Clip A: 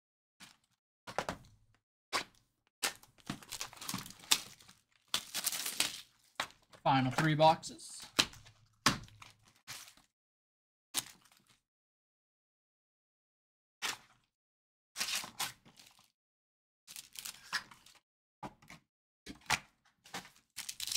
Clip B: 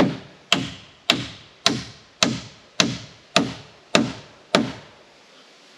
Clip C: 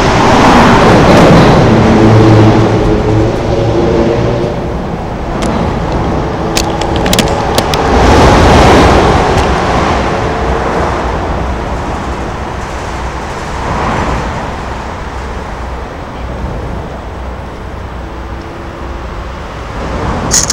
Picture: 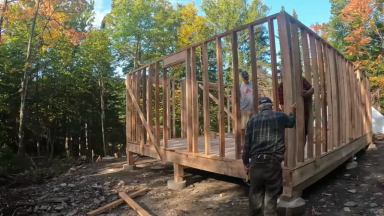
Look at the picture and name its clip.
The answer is B